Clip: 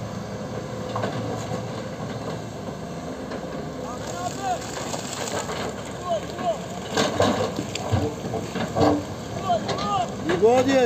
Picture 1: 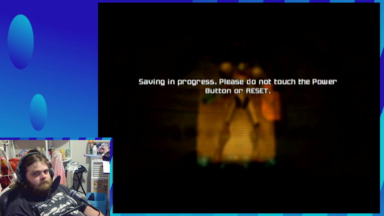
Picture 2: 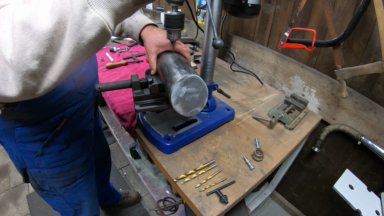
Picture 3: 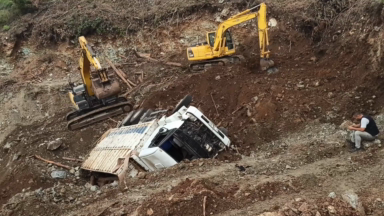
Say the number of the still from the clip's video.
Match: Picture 3